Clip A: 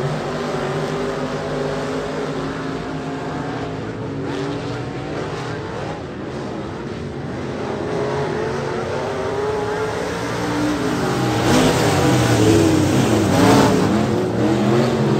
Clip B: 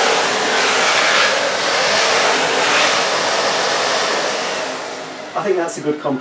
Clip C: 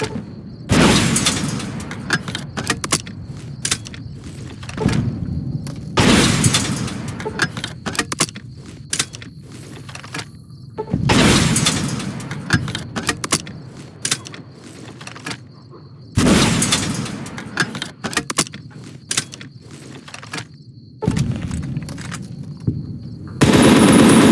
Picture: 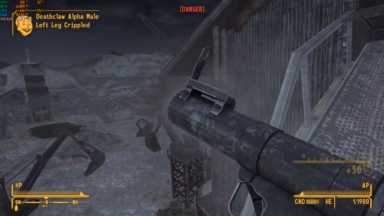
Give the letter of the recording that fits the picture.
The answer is C